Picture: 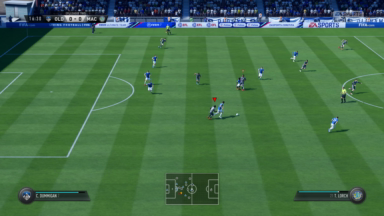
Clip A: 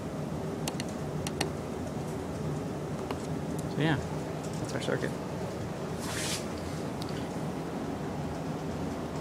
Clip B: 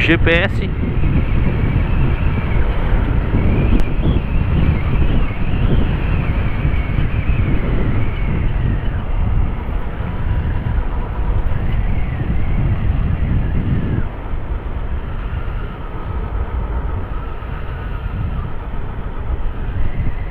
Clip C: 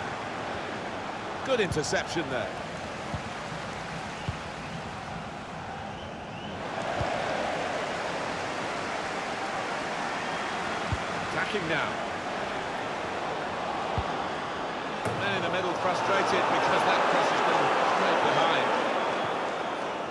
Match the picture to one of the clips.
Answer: C